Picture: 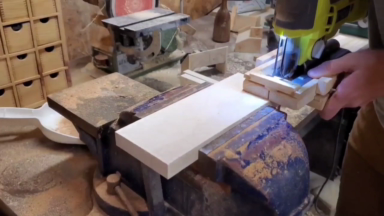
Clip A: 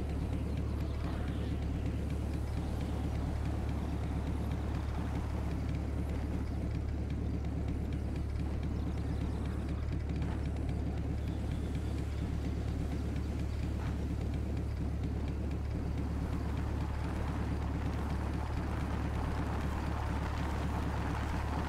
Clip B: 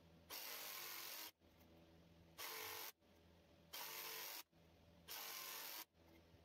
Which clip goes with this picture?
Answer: B